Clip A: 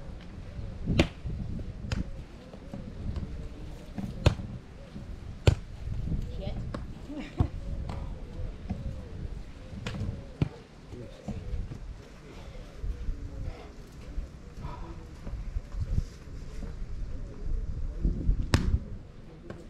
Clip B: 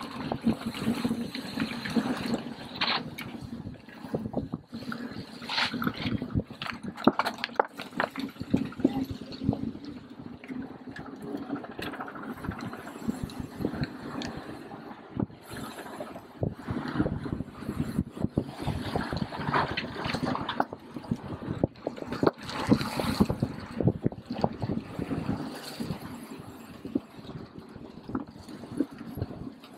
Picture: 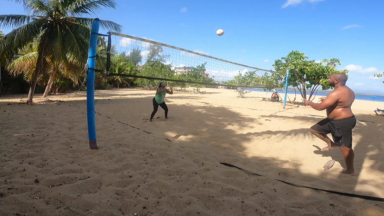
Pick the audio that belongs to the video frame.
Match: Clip A